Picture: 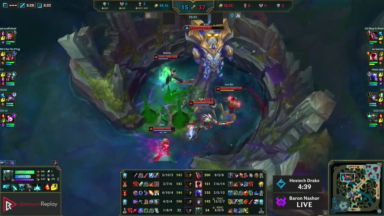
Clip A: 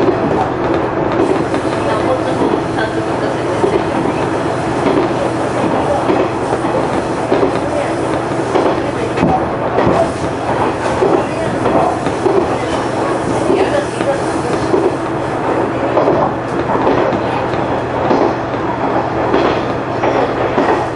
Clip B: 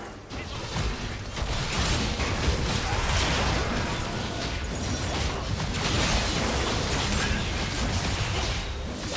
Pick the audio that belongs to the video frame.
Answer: B